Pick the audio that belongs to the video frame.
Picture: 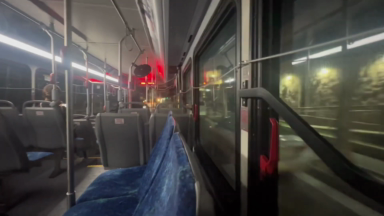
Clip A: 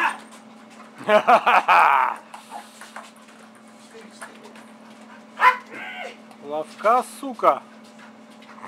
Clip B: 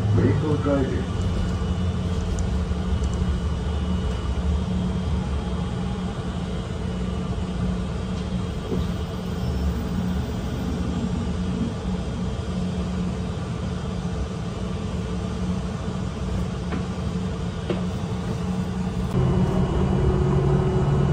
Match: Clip B